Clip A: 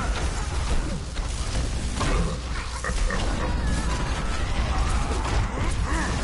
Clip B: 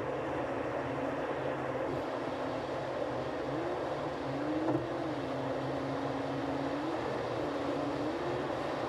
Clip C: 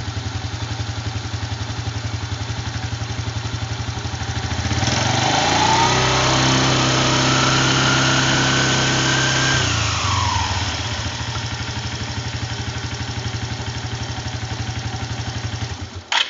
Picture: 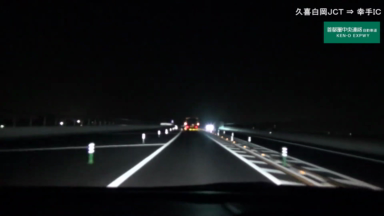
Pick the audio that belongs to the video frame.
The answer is B